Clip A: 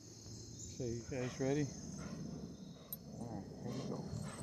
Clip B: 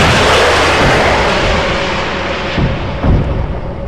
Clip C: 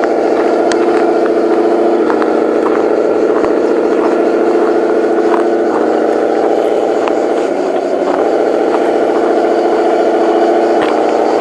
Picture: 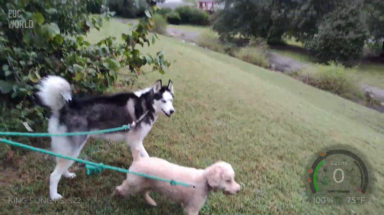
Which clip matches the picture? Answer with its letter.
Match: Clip A